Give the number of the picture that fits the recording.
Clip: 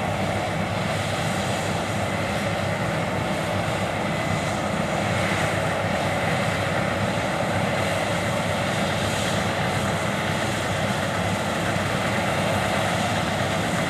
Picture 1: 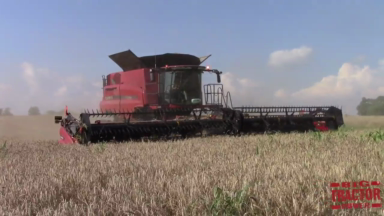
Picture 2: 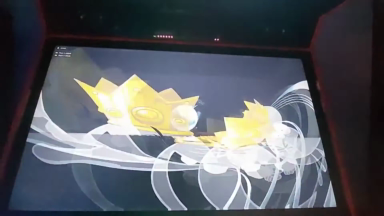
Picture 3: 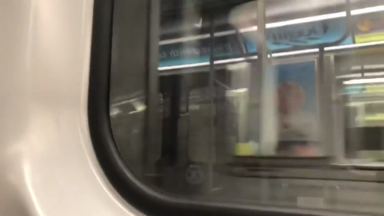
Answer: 1